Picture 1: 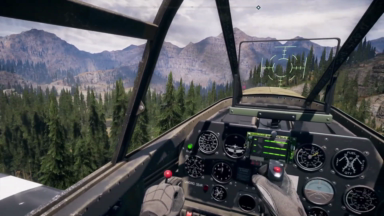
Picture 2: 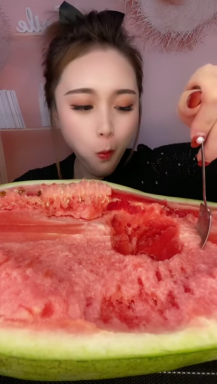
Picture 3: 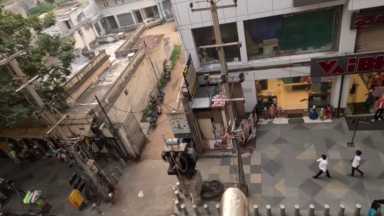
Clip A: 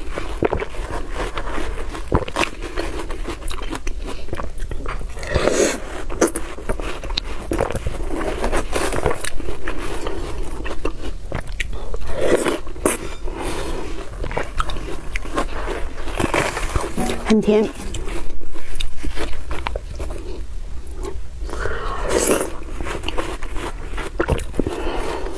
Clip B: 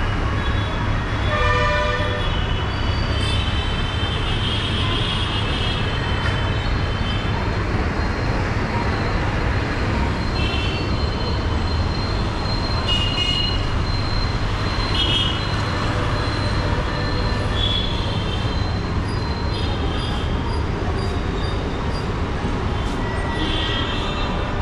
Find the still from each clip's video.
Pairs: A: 2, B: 3